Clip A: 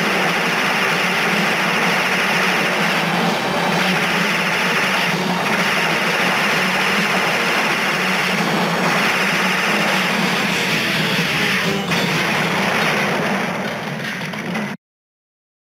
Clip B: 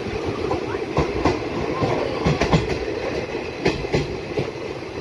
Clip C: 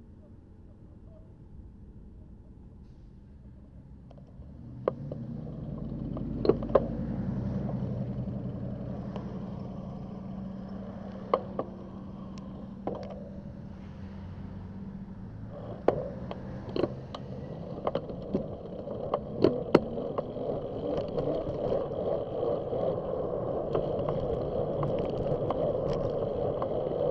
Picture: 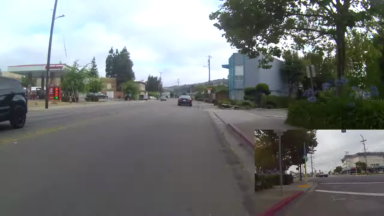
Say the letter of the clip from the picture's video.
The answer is C